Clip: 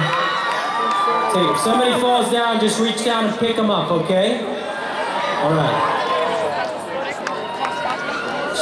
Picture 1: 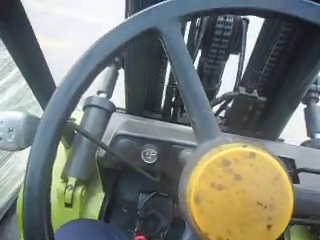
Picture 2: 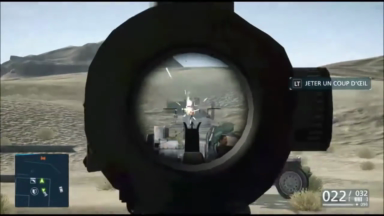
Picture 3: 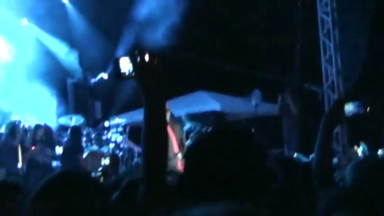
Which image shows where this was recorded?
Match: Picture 3